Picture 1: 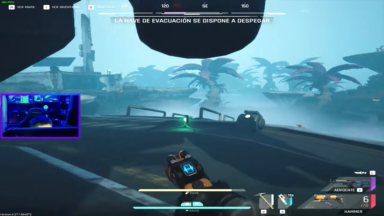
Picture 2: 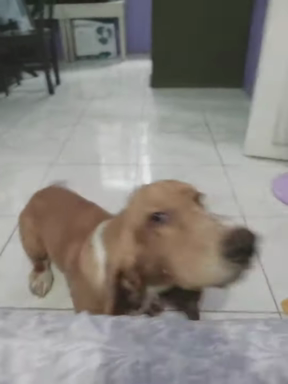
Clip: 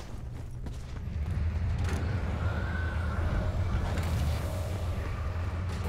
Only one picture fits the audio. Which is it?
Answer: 1